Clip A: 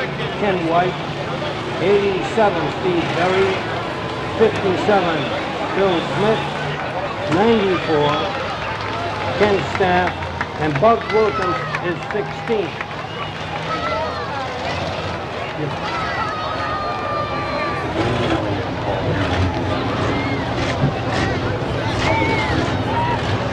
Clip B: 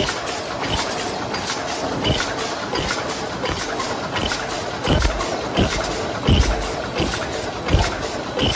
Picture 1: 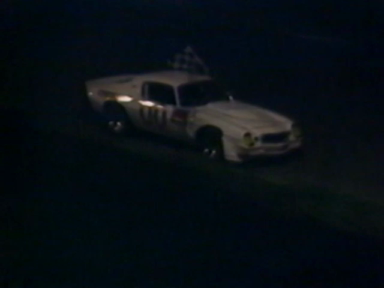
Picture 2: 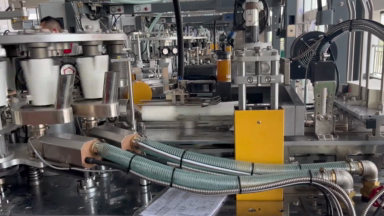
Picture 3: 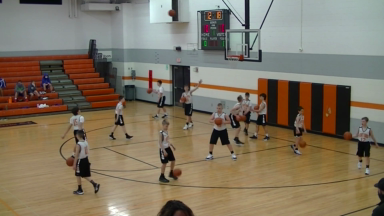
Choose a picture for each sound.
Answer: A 1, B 2